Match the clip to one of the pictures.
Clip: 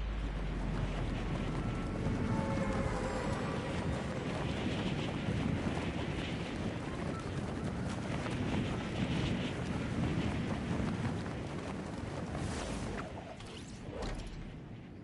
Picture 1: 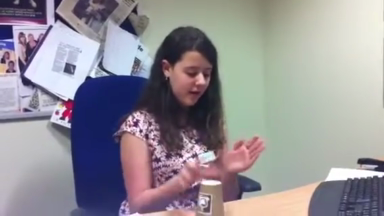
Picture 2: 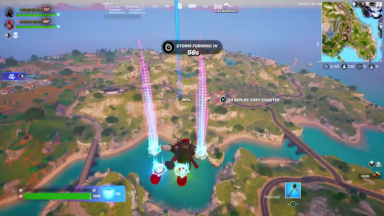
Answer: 2